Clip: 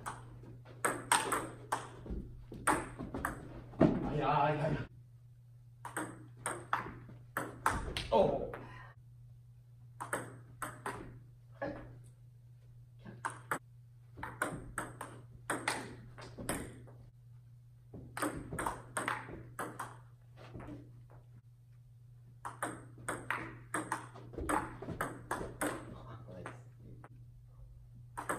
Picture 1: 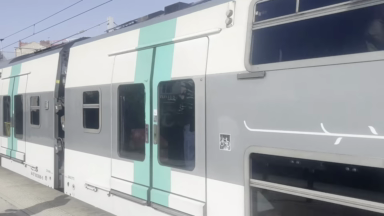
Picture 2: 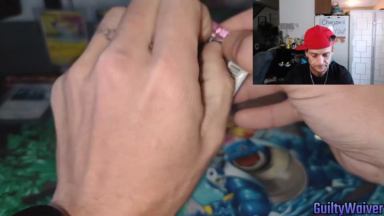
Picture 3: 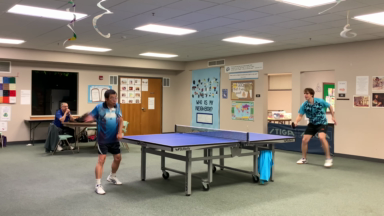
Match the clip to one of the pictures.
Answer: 3